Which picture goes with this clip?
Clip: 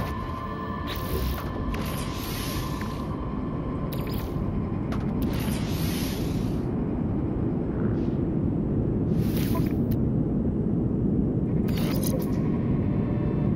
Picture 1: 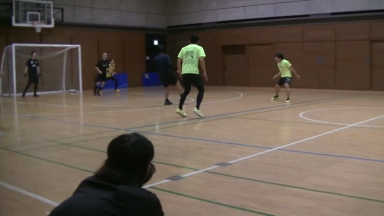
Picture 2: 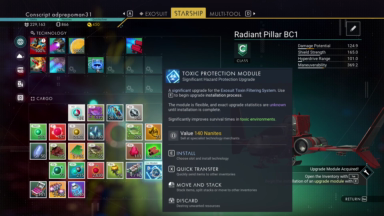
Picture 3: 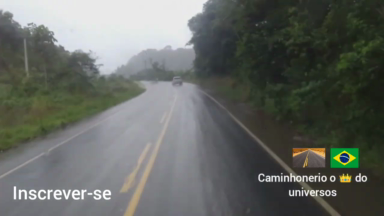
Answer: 2